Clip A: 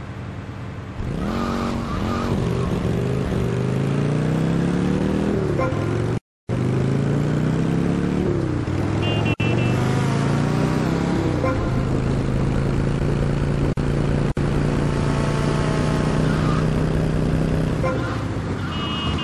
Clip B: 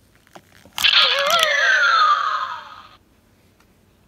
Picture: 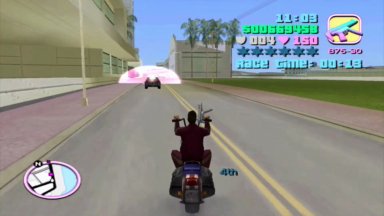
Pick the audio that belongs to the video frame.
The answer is A